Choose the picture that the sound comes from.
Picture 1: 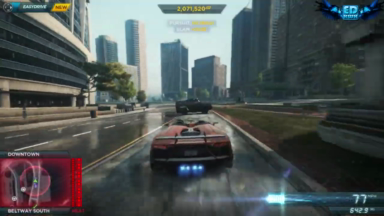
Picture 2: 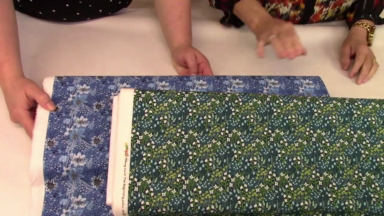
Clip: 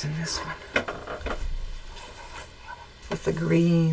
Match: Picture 2